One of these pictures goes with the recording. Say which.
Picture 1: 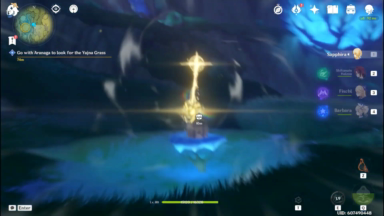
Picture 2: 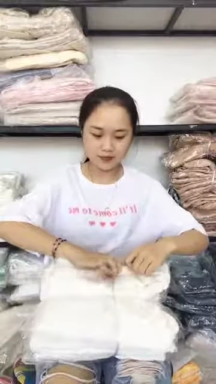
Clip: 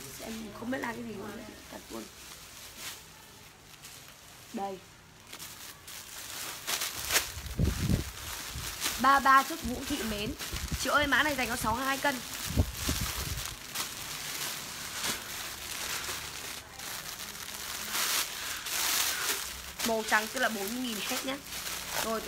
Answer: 2